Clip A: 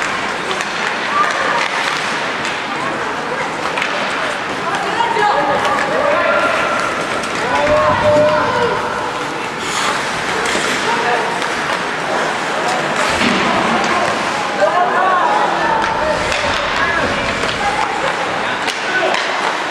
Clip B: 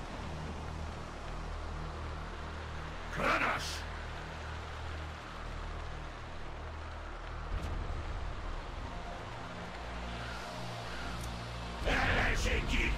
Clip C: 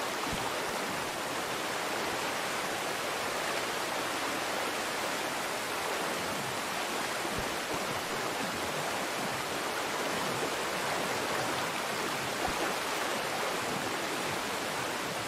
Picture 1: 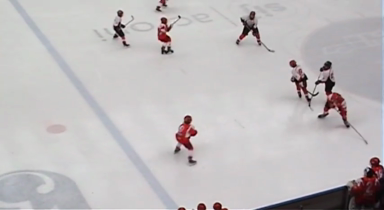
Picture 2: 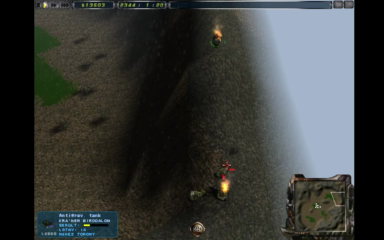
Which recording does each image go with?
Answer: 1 A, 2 B